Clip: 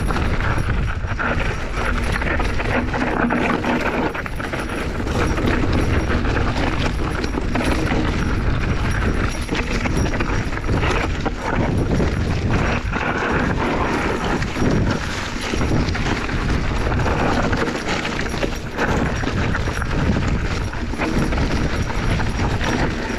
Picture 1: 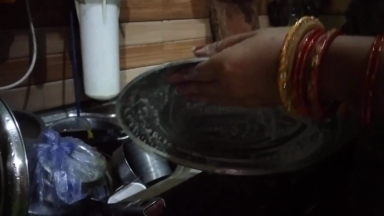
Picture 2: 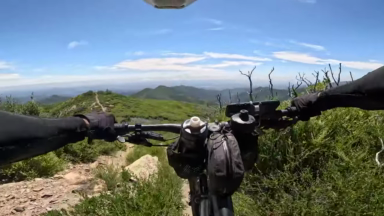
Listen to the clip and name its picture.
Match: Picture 2